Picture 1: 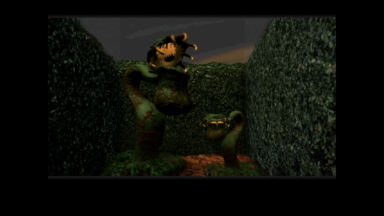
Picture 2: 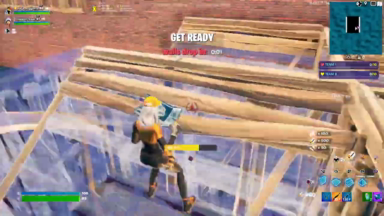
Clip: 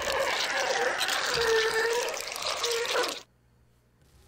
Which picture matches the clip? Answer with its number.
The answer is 1